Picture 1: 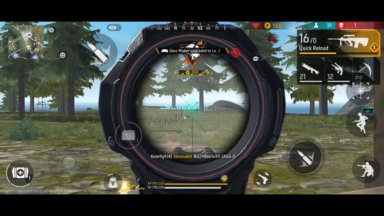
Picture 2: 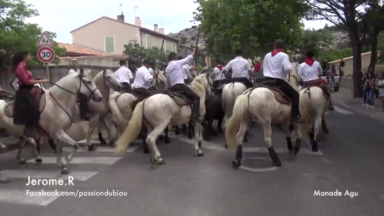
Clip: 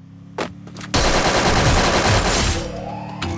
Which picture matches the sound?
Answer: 1